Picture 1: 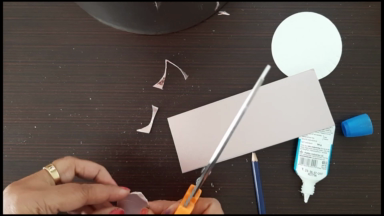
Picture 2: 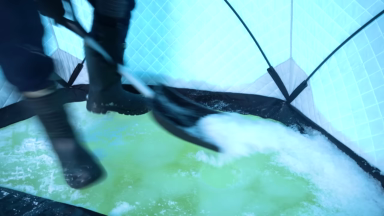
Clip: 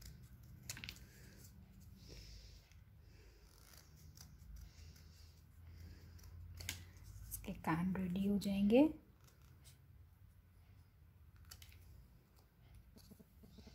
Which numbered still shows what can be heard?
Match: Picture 1